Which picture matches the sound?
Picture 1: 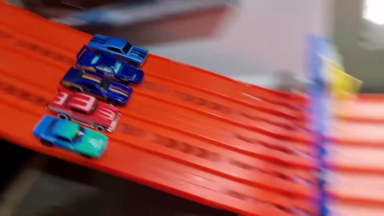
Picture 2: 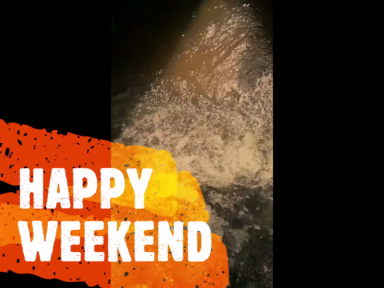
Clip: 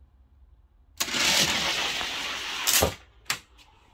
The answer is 1